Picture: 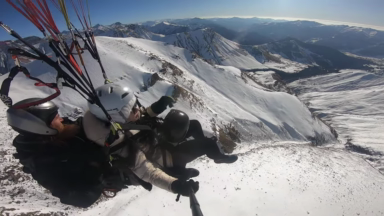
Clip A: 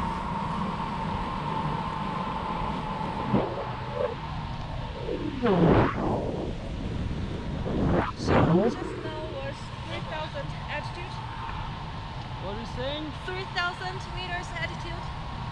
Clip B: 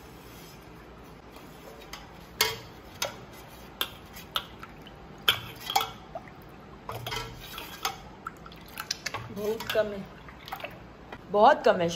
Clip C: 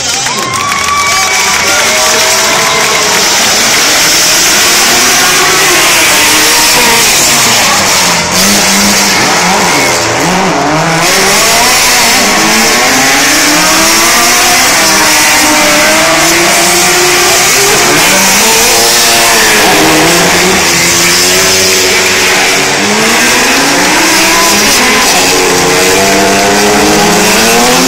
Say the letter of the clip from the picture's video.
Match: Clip A